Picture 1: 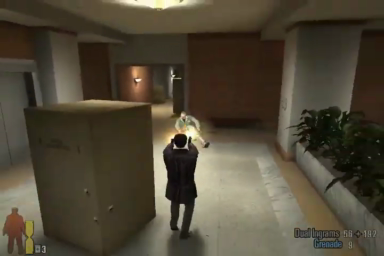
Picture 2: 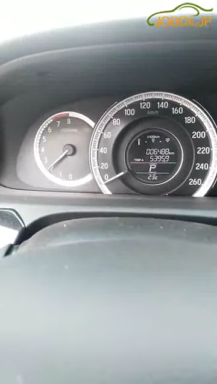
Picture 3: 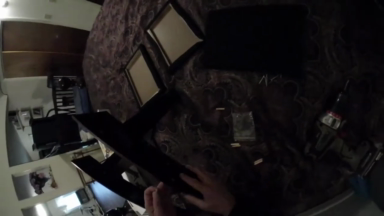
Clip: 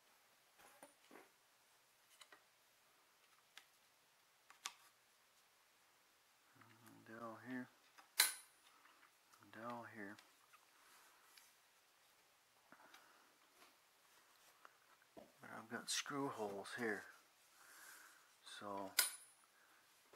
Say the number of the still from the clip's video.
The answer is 3